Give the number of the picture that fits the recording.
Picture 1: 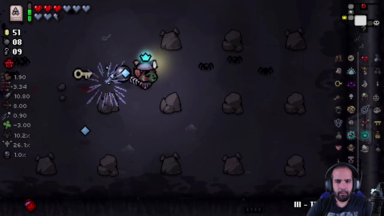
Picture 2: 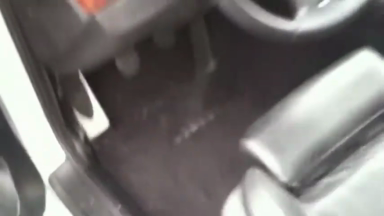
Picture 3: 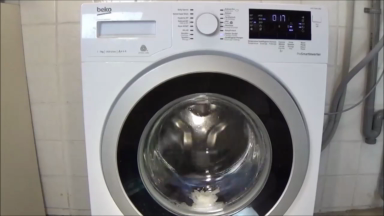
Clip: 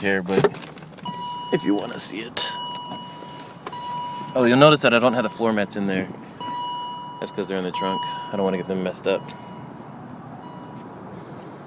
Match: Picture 2